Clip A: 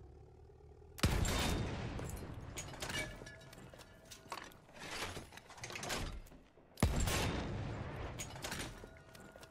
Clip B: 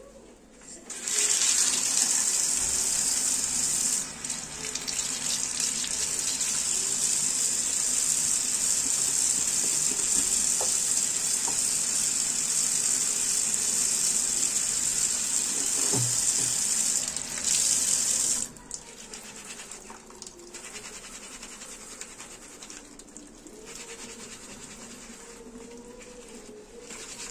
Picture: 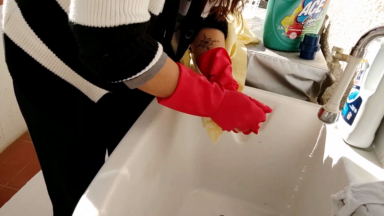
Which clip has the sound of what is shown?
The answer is B